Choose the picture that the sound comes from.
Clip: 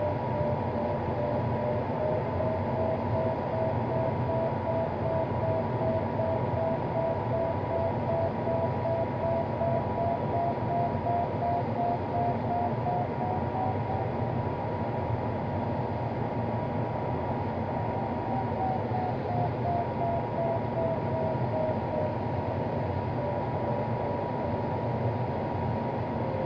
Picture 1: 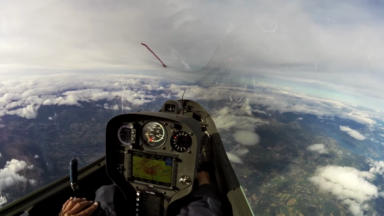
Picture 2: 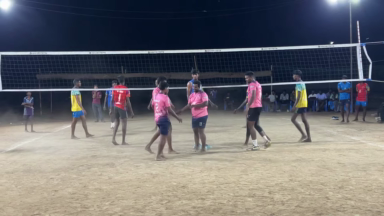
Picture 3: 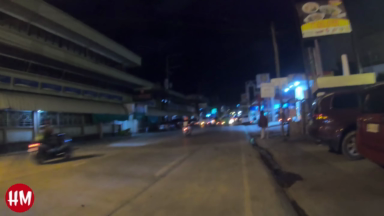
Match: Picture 1